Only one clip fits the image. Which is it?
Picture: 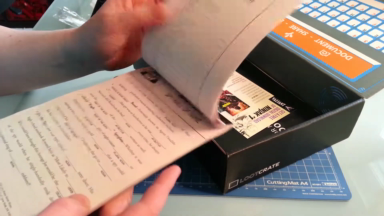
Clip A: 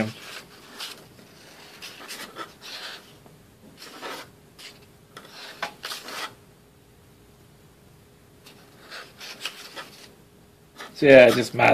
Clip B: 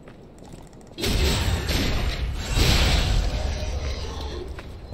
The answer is A